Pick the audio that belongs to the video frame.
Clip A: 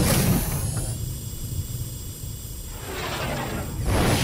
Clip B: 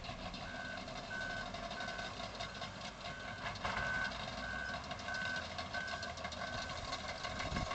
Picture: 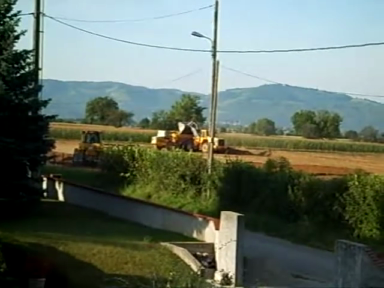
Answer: B